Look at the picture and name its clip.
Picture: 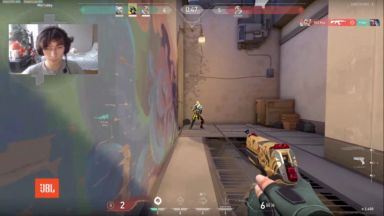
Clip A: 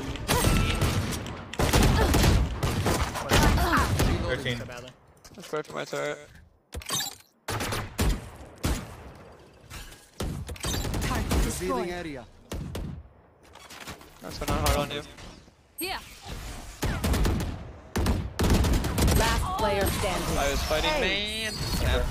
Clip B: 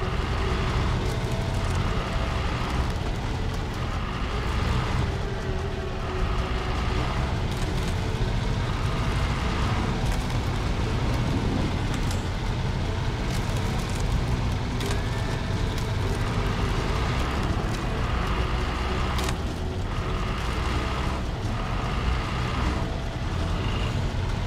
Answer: A